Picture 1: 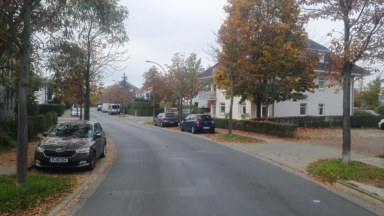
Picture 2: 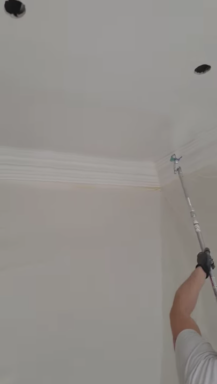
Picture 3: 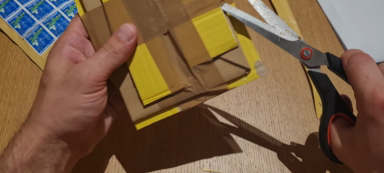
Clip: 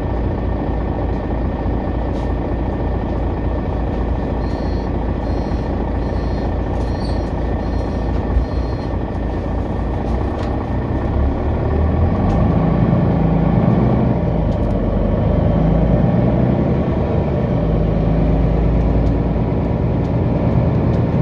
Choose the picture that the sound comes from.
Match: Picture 1